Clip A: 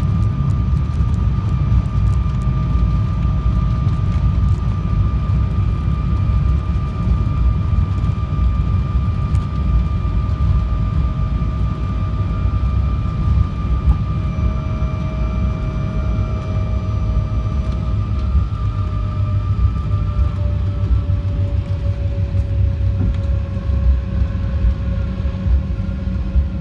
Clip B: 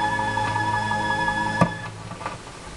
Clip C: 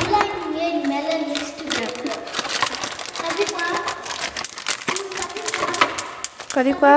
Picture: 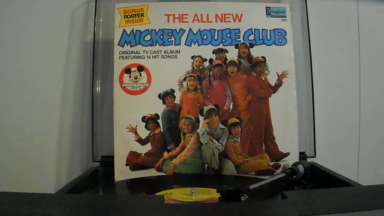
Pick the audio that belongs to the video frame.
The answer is B